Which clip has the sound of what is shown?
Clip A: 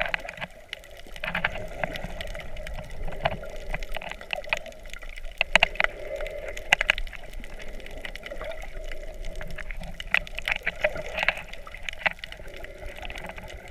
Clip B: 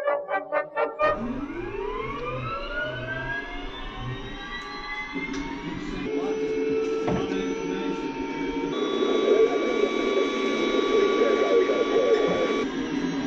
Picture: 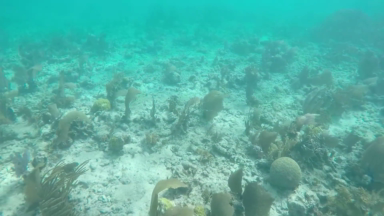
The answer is A